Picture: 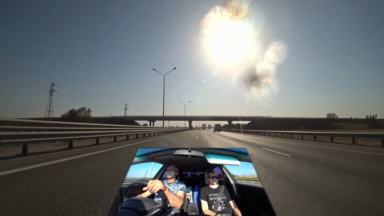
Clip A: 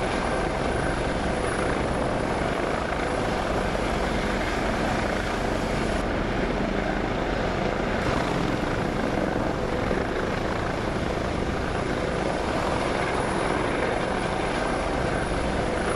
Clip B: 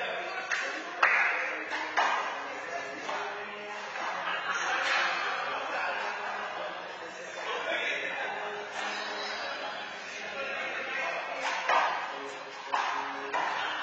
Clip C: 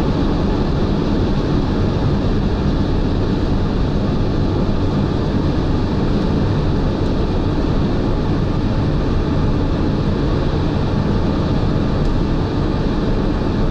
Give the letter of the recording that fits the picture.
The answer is C